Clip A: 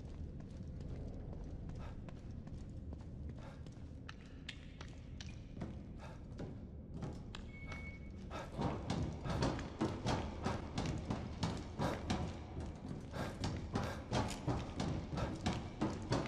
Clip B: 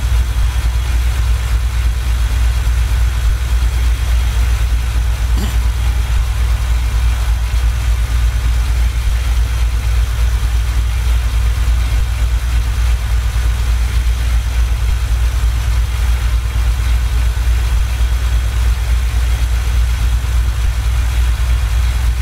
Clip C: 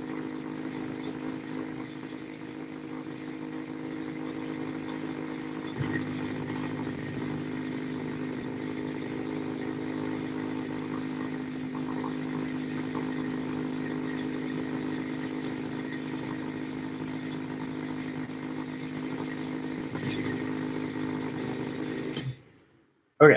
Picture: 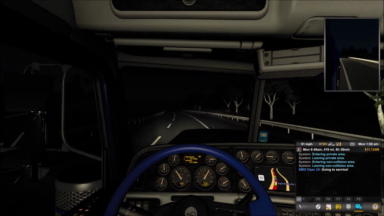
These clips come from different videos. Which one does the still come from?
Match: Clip B